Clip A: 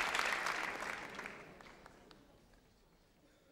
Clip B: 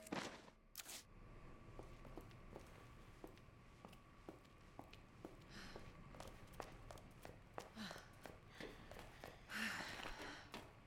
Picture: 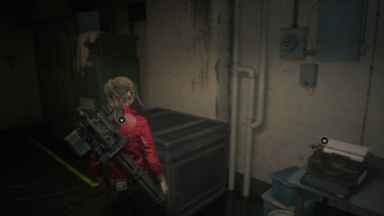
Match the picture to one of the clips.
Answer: B